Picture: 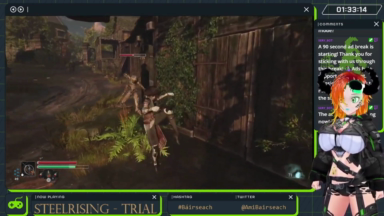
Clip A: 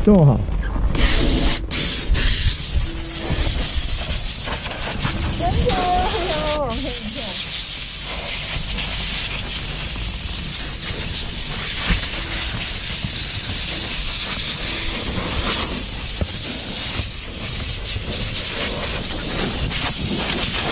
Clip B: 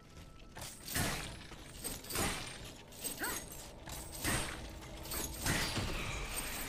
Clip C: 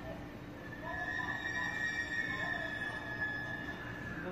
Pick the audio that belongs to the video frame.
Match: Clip B